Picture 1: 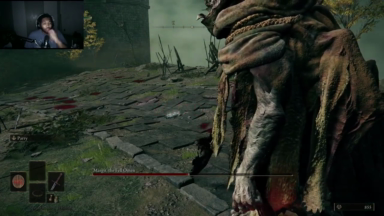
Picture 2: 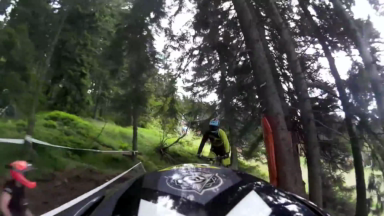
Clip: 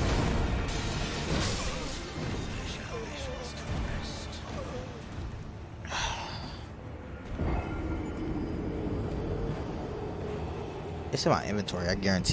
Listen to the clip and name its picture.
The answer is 1